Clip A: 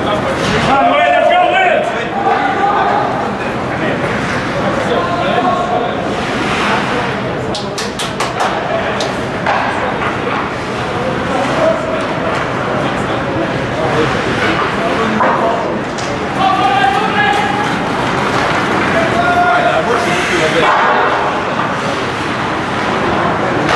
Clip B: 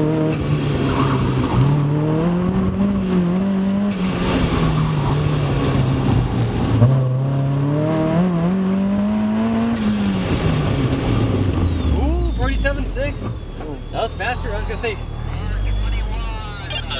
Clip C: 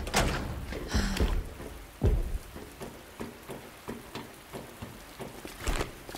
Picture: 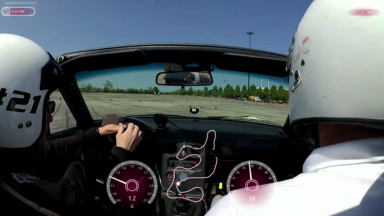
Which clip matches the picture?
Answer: B